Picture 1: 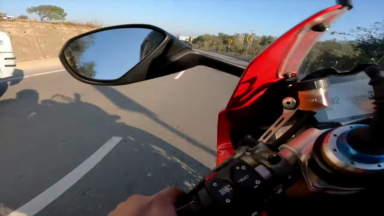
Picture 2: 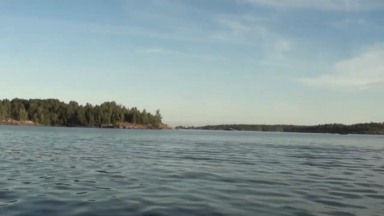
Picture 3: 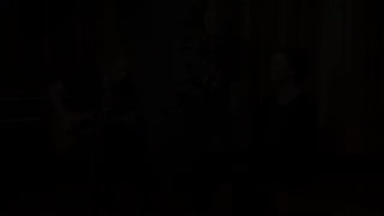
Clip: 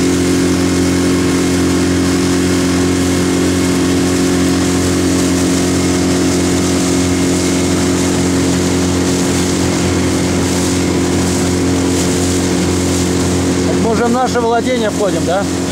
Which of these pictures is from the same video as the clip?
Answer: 2